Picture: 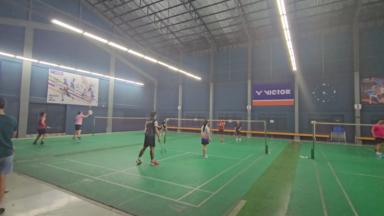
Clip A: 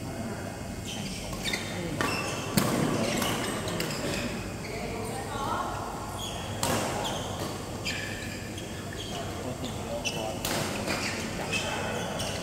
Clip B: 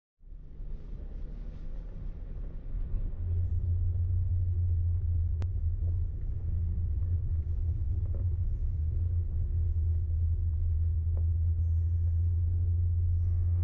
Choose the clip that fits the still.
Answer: A